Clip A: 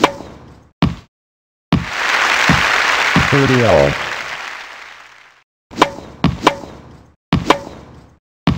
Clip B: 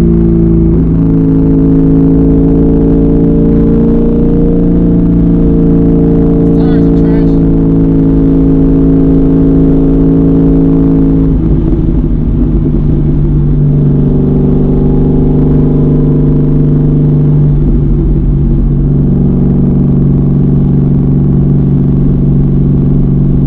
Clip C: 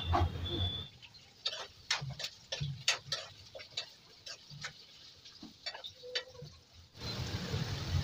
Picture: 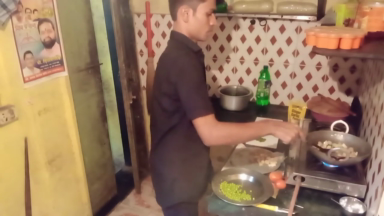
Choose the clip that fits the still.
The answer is C